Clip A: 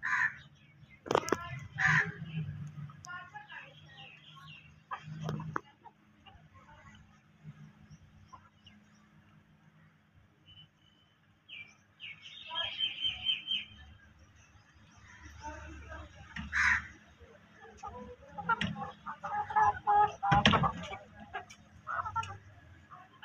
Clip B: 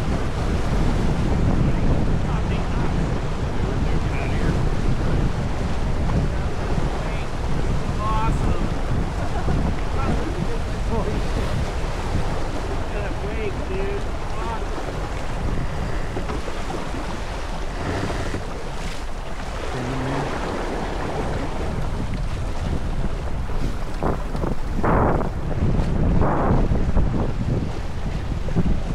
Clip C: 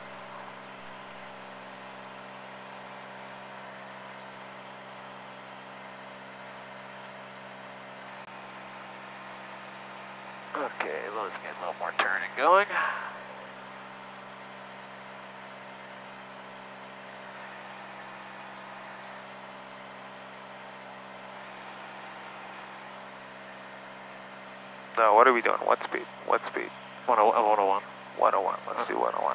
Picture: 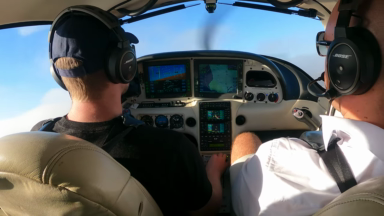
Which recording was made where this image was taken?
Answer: C